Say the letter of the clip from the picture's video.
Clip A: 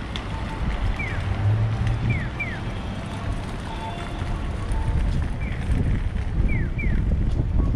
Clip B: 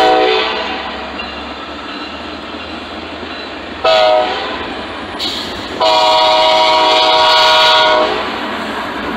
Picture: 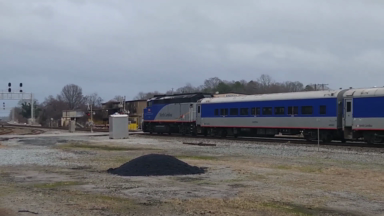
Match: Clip B